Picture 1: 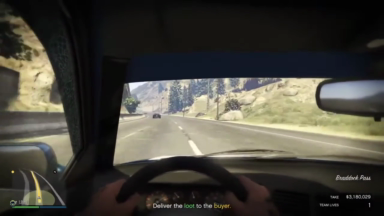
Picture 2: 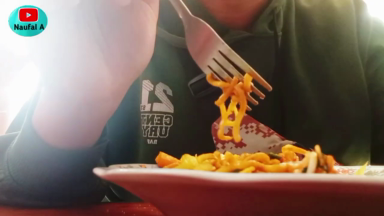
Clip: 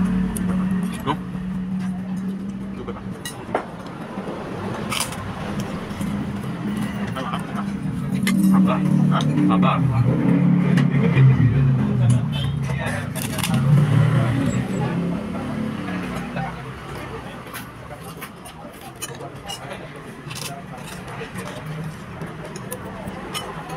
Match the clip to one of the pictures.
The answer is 2